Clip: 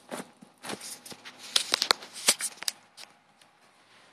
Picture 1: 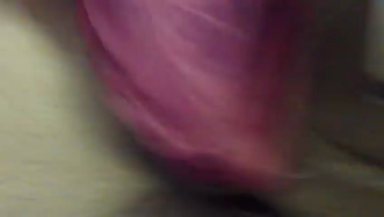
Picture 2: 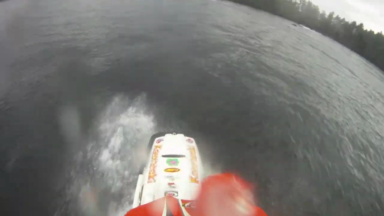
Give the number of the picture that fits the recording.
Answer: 1